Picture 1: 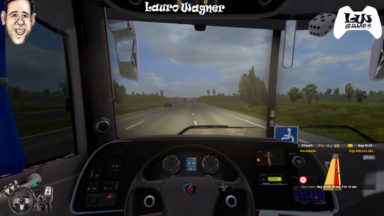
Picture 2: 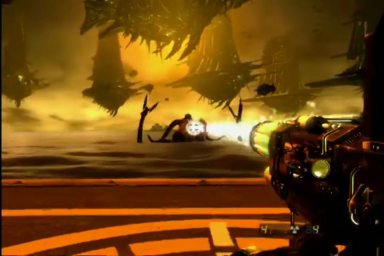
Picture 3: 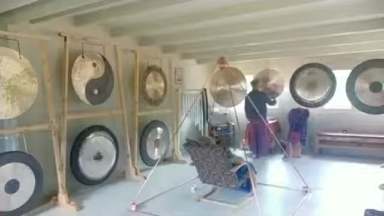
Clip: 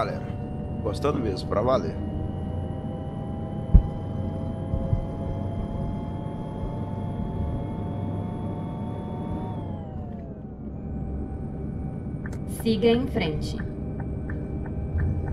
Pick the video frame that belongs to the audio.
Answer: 1